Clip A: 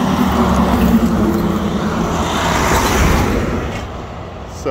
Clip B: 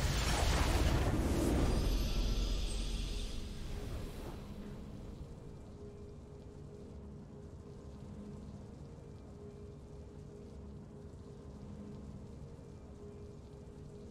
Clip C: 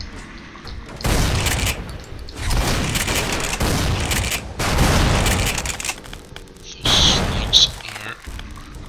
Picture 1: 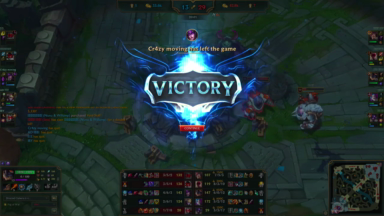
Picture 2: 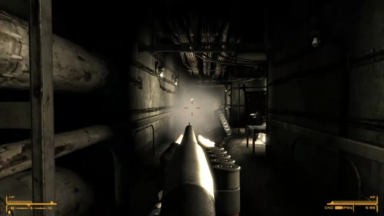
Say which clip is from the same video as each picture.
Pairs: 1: B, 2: C